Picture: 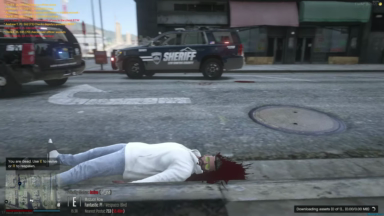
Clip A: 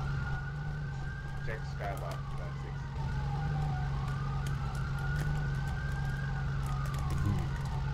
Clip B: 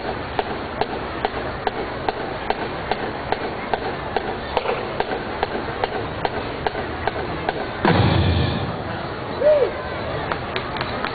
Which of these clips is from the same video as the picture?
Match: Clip A